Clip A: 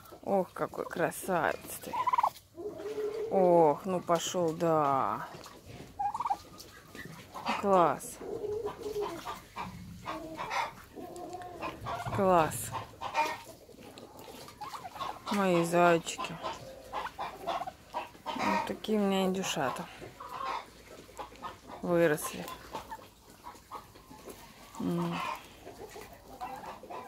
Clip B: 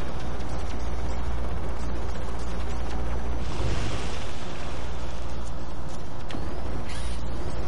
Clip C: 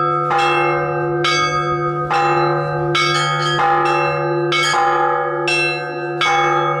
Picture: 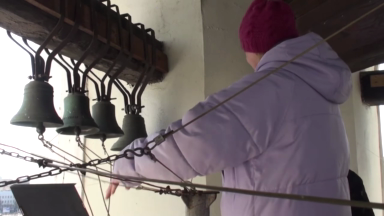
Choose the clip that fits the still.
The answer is C